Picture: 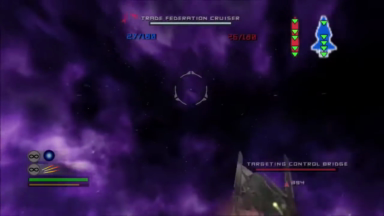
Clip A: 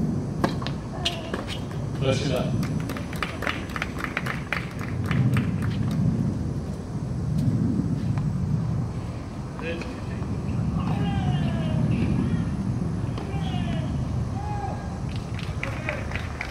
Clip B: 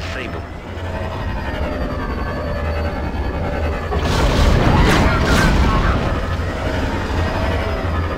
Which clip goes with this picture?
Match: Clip B